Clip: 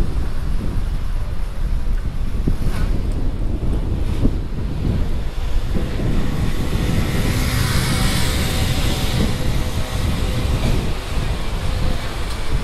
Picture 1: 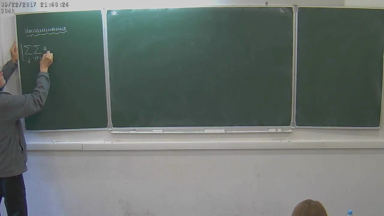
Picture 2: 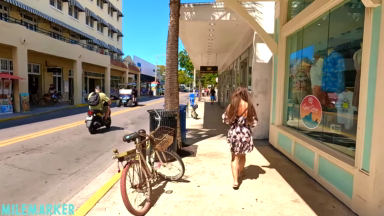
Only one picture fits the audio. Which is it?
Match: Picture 2